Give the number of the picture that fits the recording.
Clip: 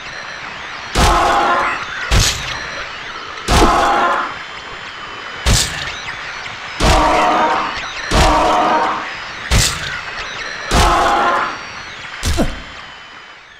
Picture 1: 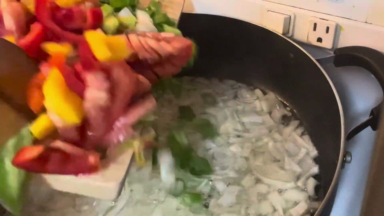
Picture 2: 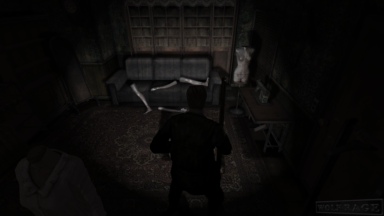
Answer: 2